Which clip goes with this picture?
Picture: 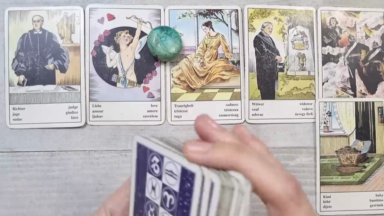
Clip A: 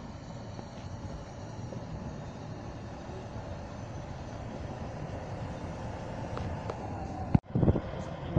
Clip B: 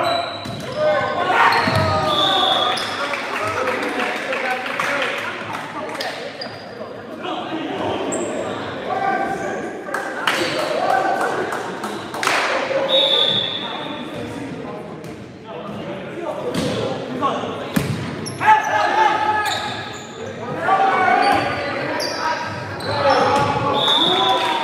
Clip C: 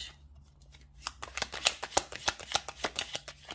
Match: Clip C